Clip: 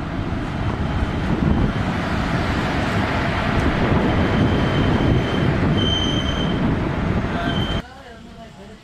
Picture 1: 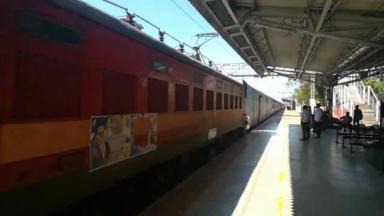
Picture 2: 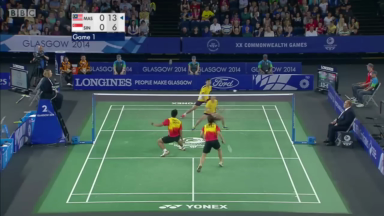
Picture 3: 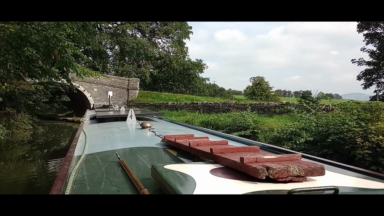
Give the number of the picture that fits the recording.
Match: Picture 1